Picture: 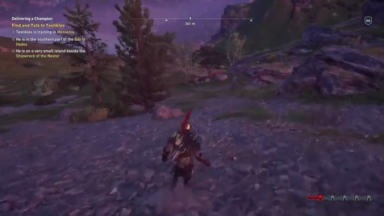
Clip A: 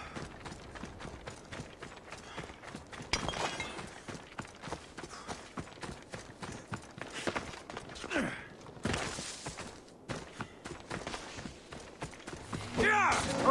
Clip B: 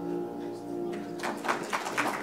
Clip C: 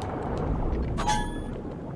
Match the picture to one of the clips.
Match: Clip A